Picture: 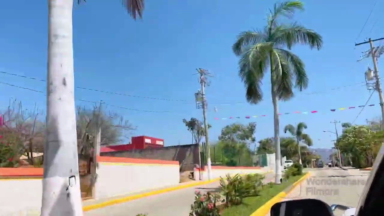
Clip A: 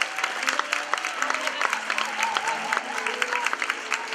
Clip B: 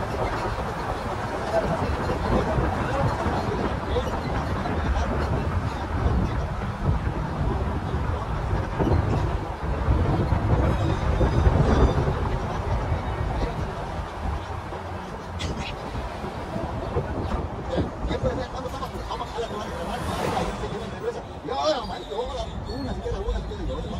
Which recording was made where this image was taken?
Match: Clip B